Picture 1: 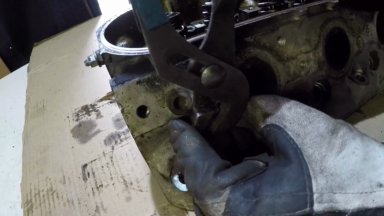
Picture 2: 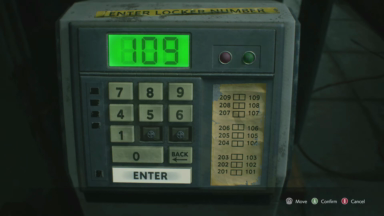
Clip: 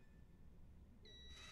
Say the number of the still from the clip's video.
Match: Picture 2